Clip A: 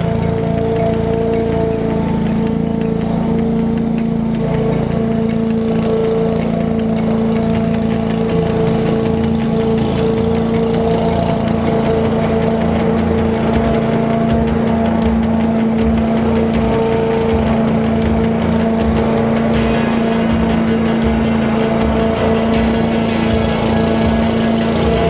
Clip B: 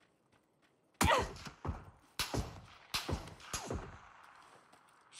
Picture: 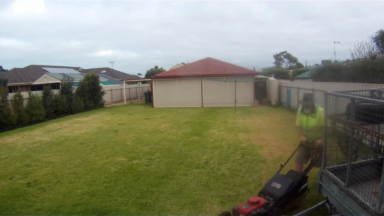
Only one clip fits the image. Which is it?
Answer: A